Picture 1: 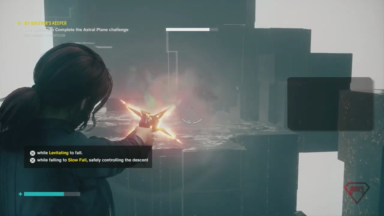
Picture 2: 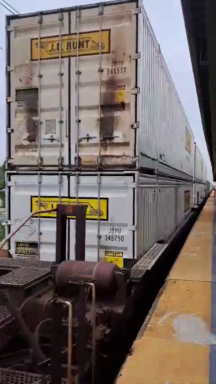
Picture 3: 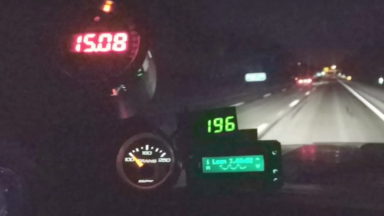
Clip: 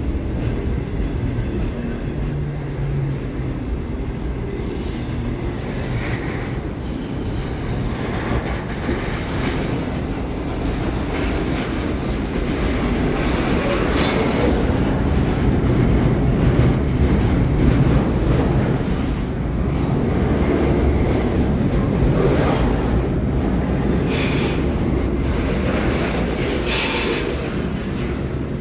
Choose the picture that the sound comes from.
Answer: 2